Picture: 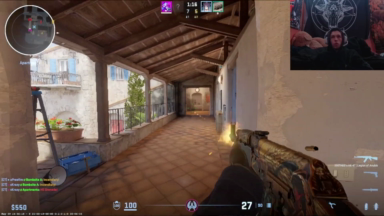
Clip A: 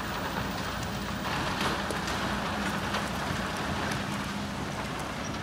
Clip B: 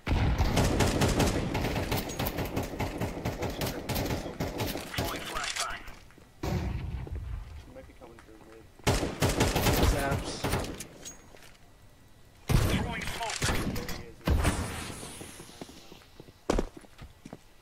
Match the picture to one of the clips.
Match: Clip B